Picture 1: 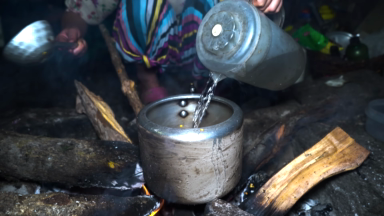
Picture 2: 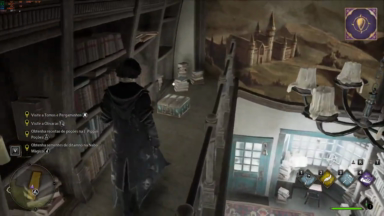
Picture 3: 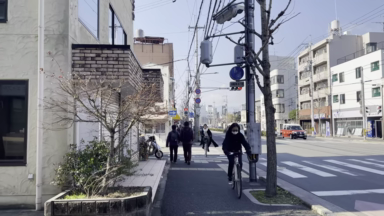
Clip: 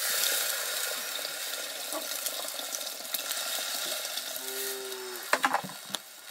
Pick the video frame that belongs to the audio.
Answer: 1